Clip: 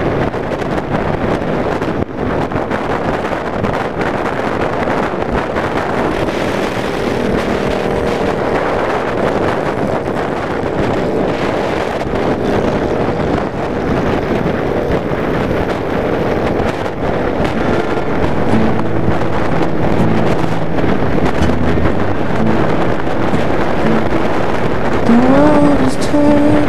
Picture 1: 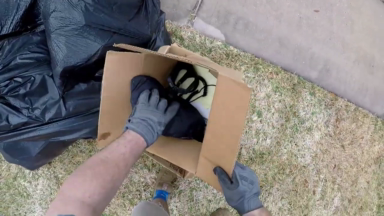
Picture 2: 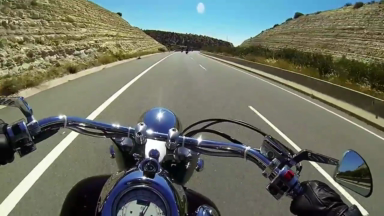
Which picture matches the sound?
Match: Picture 2